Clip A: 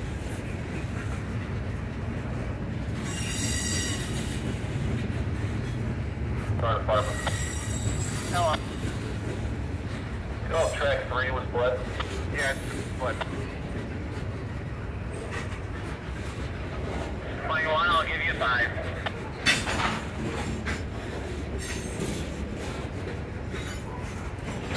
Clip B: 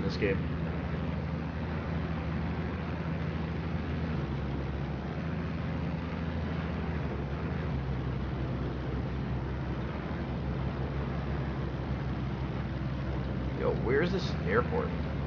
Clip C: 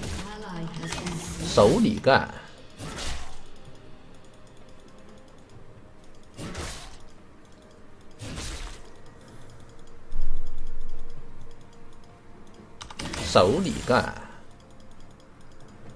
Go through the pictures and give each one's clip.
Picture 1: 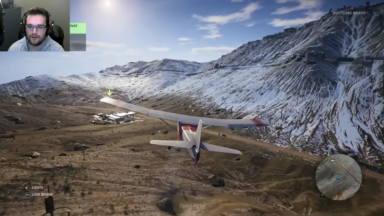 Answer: B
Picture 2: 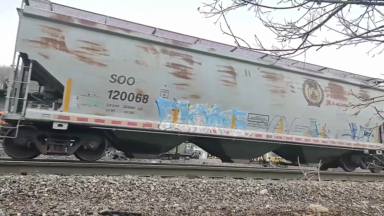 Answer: A